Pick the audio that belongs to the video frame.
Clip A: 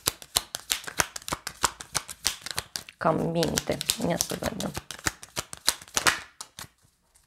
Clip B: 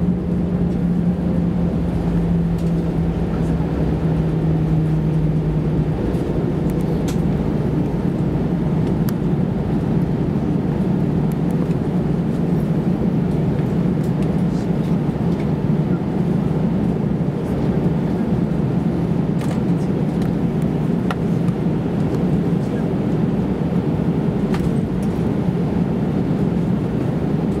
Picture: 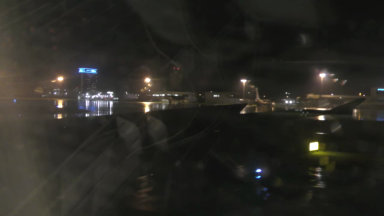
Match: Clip B